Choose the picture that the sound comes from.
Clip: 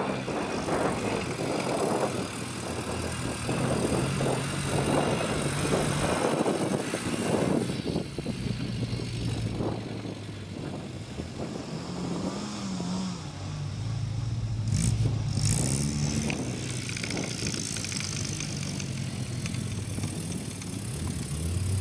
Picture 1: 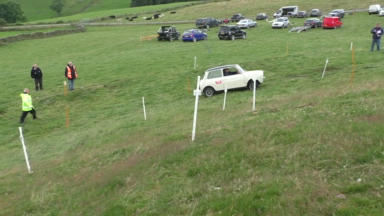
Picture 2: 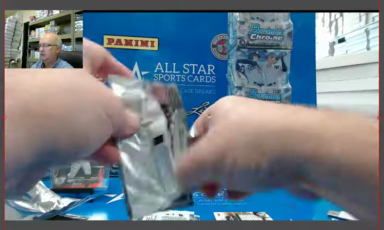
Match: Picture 1